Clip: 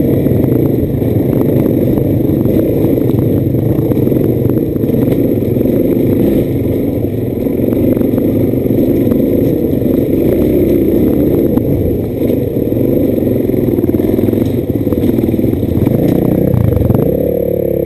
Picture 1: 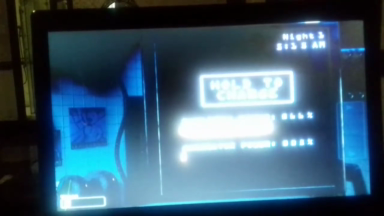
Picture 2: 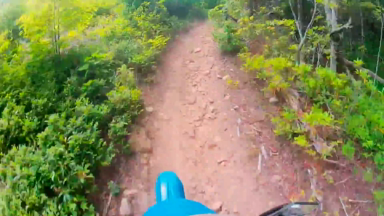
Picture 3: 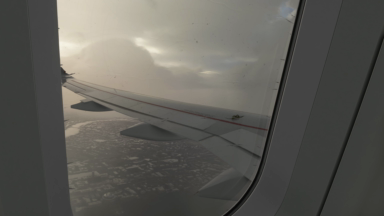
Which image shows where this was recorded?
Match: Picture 2